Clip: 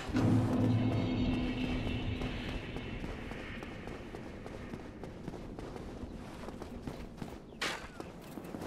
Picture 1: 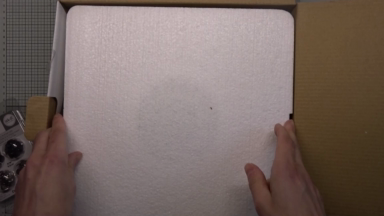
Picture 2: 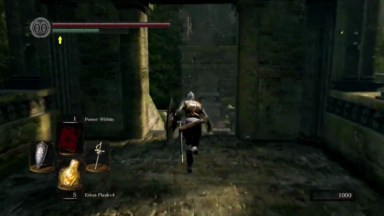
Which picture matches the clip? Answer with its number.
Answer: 2